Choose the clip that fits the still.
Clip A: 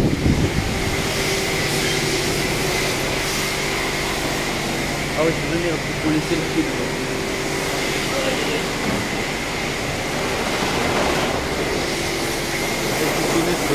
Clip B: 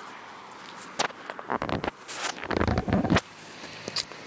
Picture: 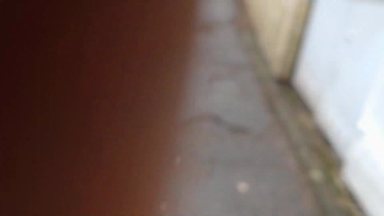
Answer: B